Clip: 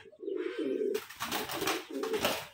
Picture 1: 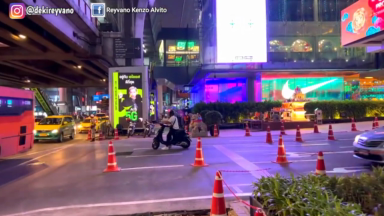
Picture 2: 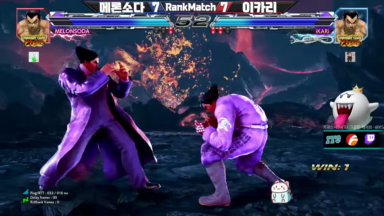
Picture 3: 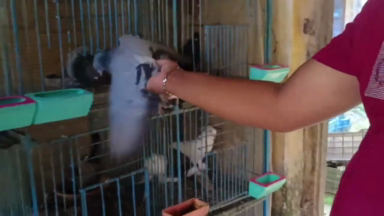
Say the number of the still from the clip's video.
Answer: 3